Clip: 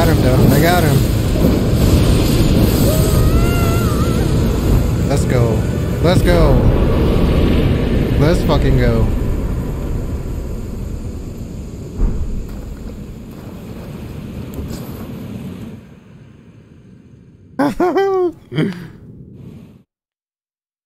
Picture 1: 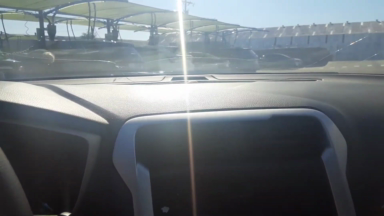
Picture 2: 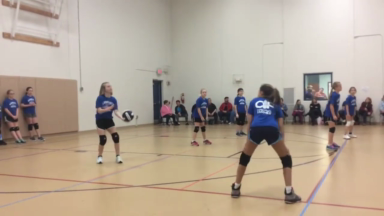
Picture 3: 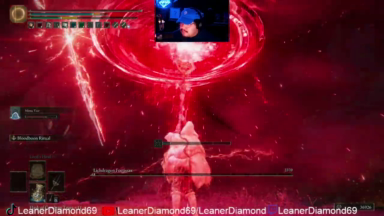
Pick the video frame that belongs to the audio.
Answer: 3